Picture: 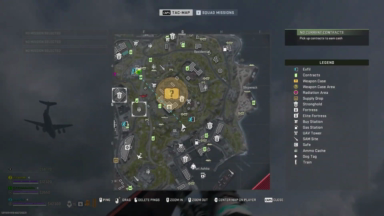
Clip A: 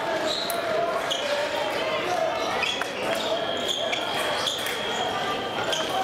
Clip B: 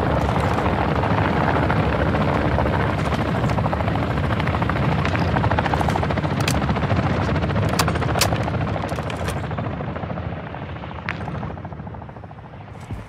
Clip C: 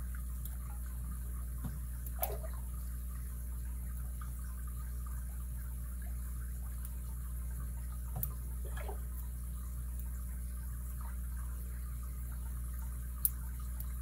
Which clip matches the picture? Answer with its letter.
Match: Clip B